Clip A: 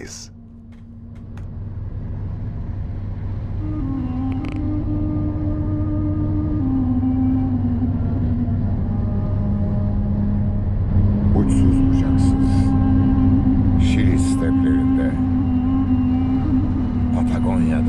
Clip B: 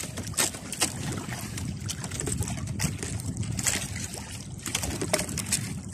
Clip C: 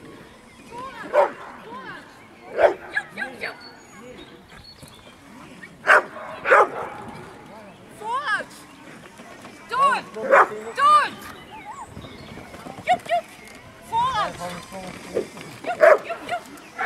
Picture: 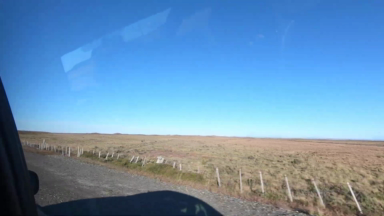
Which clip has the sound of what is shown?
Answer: A